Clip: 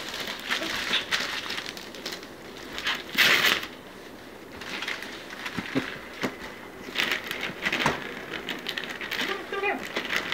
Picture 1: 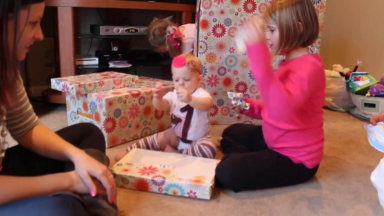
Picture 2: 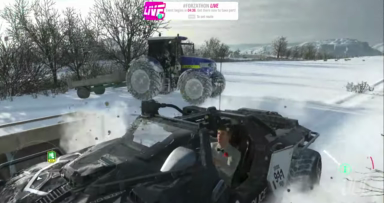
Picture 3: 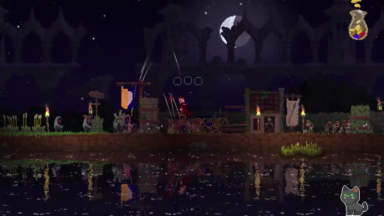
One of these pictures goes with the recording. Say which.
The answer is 1